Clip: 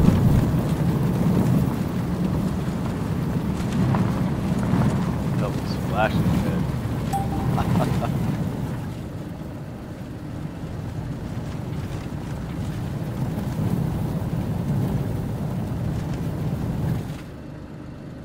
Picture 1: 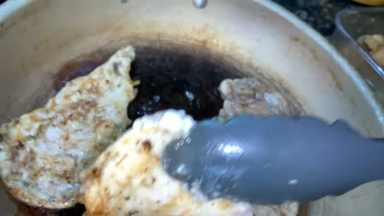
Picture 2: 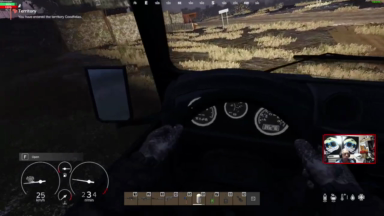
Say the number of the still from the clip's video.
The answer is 2